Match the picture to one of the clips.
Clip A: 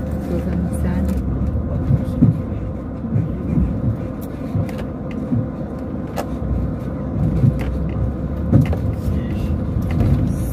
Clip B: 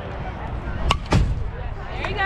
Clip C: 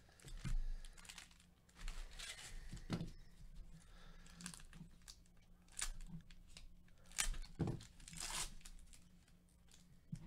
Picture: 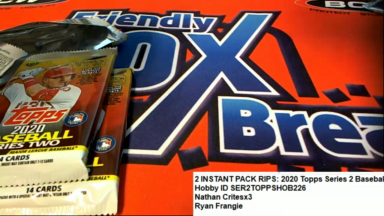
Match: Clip C